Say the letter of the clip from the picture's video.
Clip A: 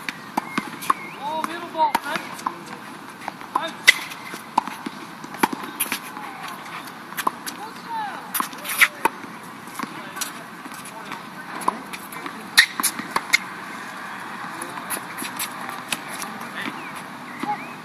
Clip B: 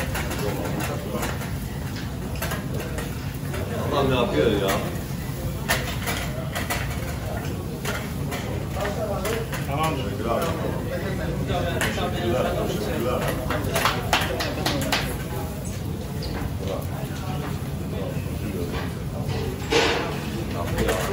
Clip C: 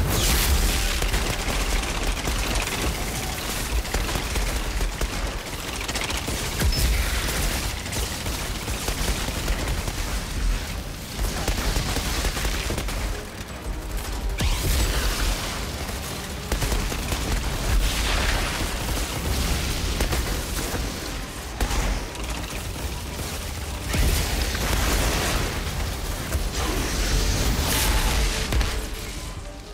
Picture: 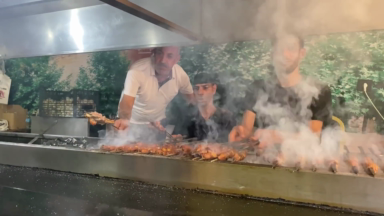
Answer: B